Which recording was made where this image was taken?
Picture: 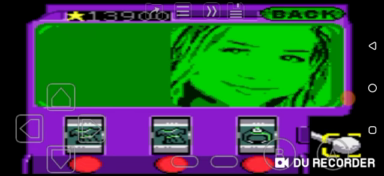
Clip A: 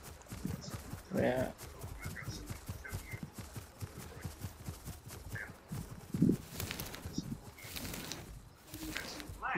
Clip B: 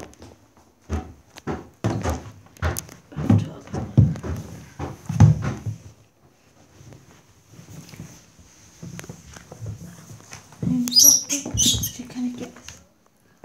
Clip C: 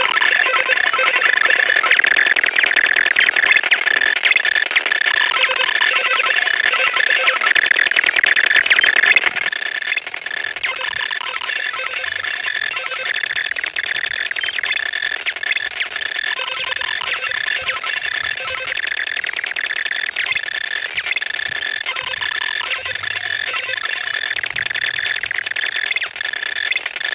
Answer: C